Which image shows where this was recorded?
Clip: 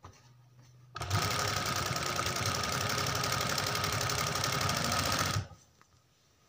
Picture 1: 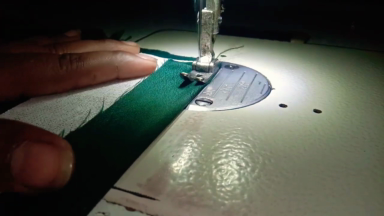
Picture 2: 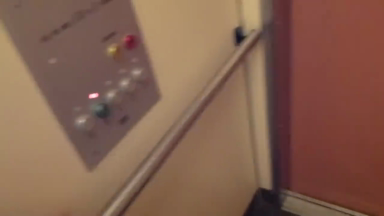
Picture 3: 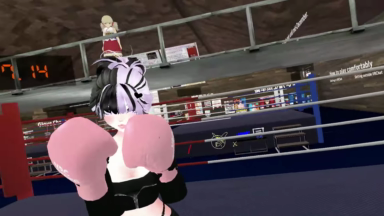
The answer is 1